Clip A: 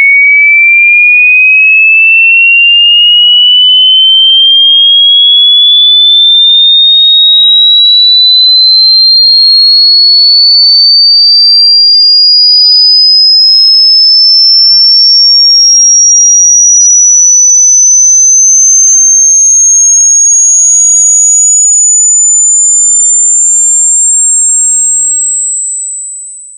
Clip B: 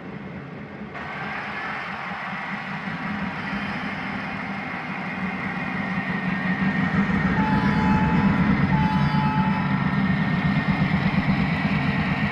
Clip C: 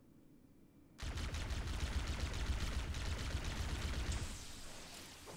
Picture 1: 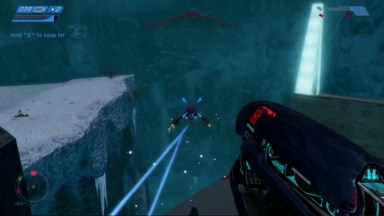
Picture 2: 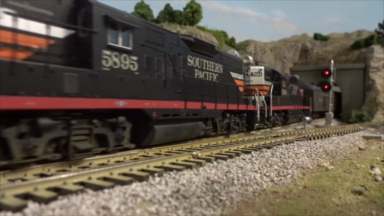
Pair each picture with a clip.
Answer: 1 C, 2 B